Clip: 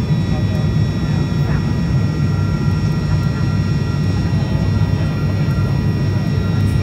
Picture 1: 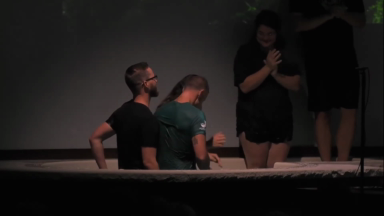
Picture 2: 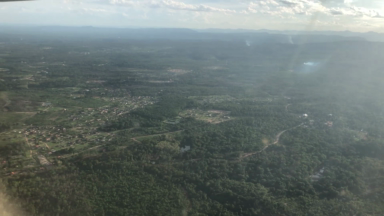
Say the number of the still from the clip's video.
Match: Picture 2